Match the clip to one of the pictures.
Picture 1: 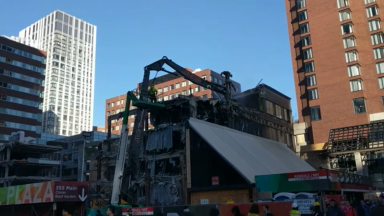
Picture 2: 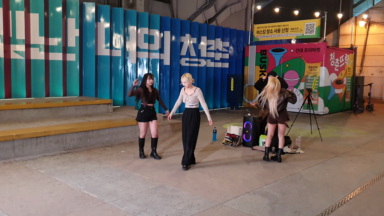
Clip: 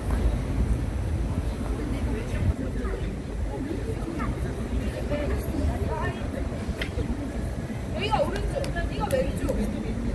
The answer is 2